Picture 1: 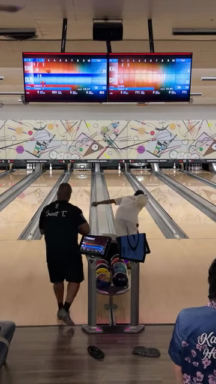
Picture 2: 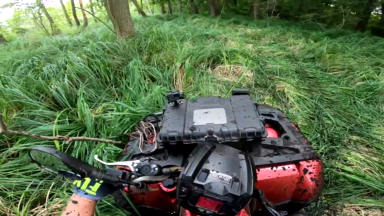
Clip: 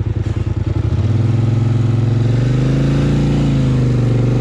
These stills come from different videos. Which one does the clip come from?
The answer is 2